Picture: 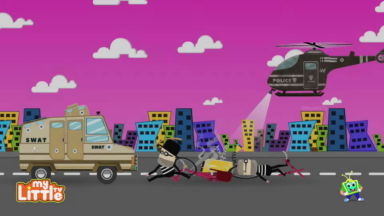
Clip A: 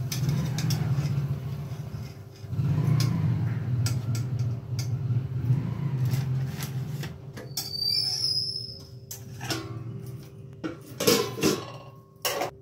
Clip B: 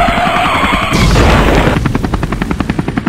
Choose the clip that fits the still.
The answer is B